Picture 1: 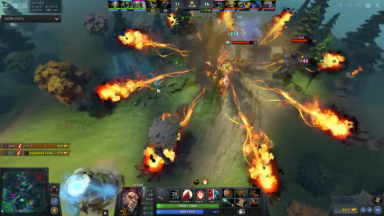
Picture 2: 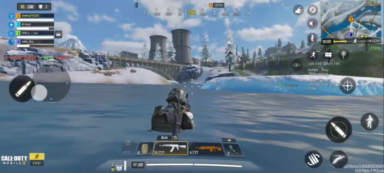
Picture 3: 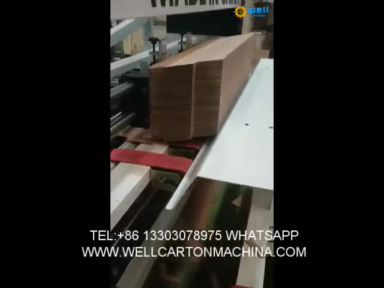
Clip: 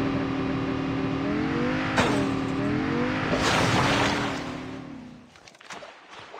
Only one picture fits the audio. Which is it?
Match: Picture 2